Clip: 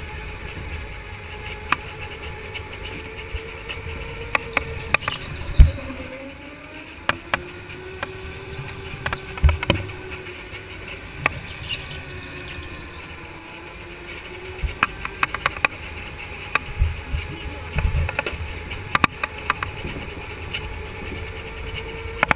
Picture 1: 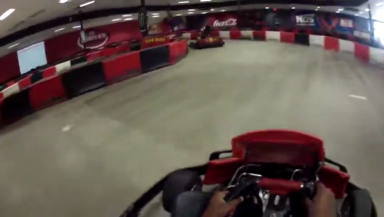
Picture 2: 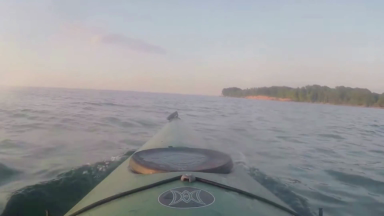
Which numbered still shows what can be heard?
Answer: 1